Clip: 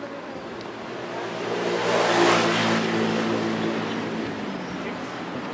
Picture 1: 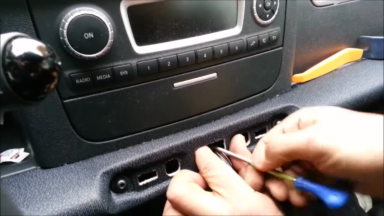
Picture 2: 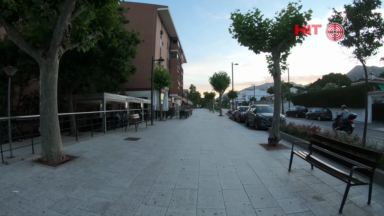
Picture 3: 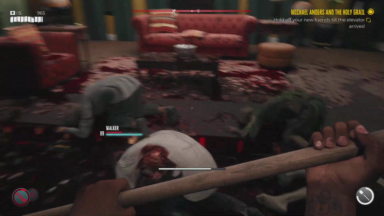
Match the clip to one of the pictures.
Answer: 2